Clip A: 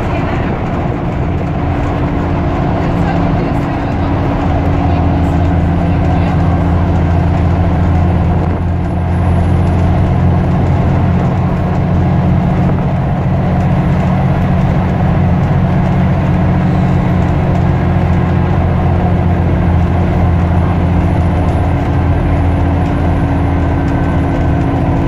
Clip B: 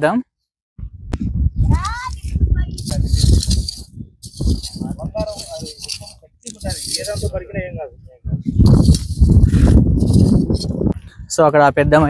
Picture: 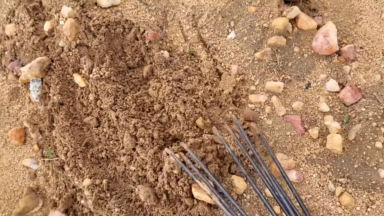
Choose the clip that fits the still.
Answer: B